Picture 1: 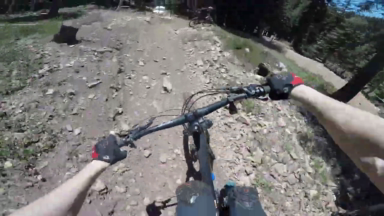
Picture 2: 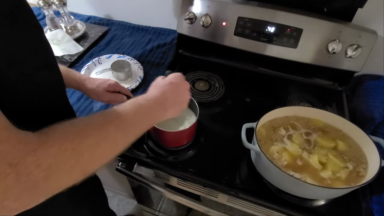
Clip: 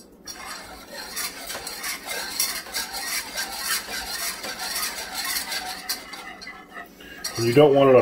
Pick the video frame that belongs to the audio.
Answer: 2